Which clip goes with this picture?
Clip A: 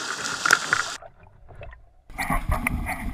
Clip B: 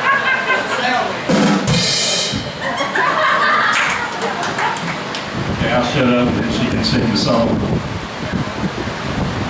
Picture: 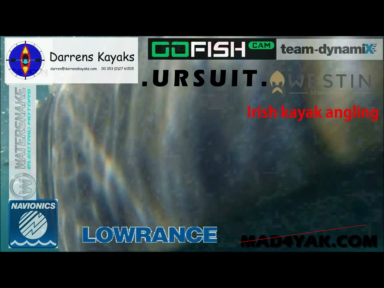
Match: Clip A